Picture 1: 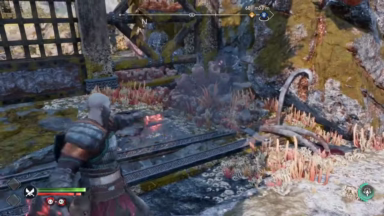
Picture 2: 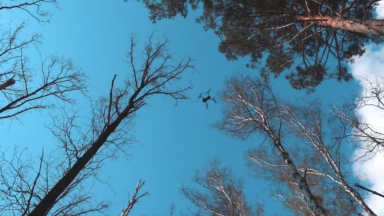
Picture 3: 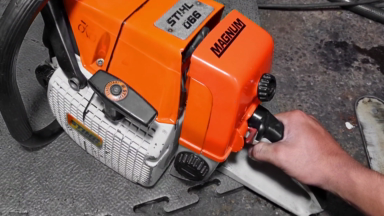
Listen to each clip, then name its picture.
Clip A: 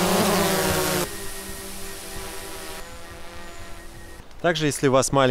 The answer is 2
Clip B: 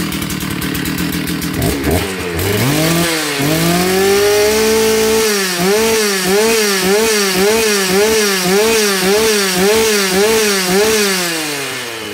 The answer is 3